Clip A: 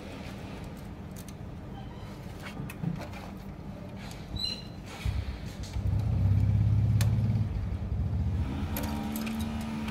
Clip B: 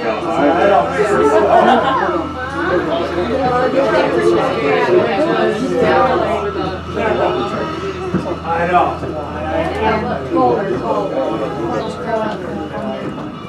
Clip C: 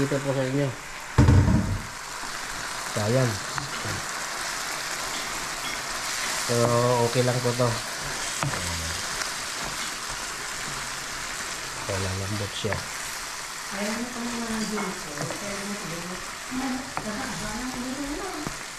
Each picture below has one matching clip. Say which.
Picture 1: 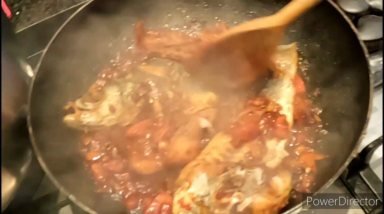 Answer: C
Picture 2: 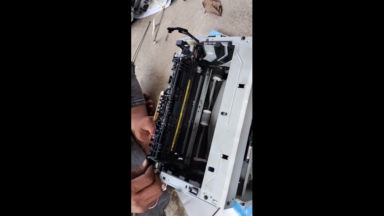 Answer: A